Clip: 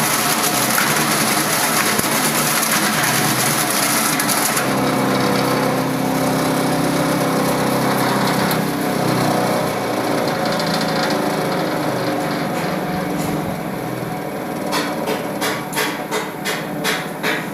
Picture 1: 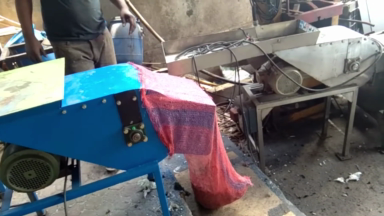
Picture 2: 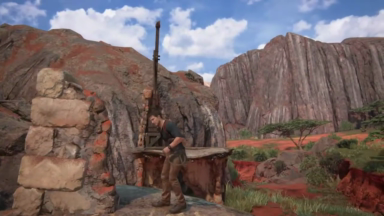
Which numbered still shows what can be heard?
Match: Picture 1